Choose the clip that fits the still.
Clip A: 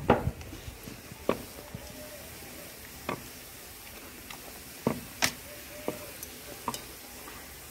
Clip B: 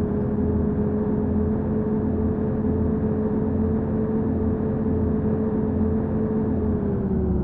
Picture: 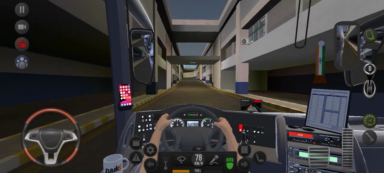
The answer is B